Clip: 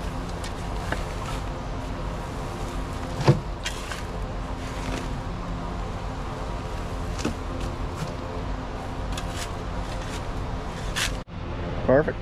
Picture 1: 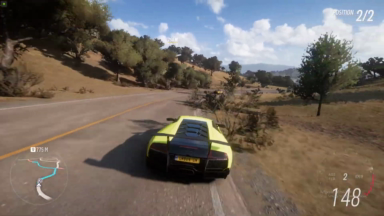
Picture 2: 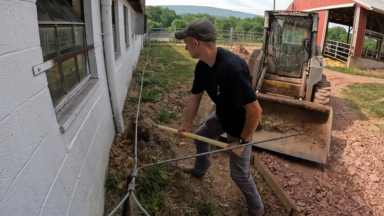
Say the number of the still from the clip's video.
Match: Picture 2